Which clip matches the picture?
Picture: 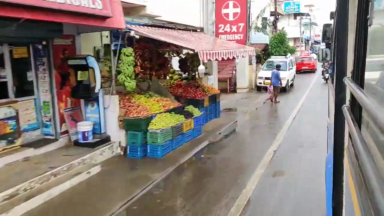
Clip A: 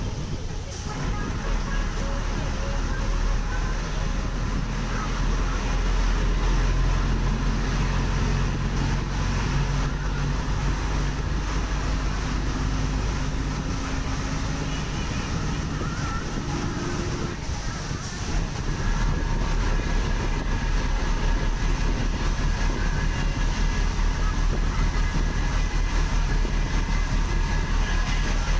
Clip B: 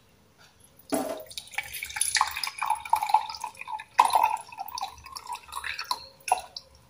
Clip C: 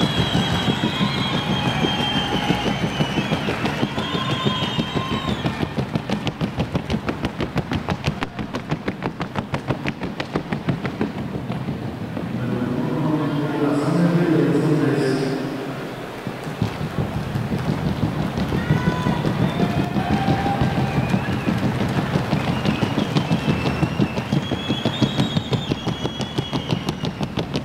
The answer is A